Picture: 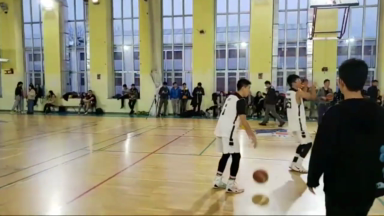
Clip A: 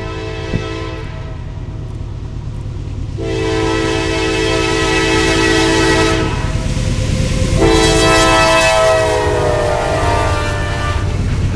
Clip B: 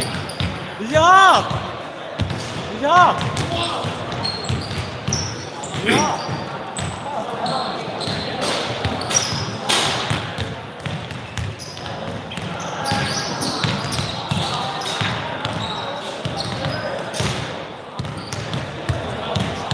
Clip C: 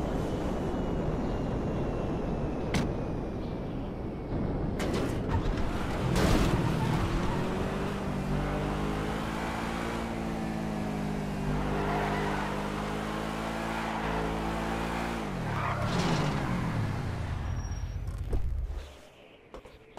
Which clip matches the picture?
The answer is B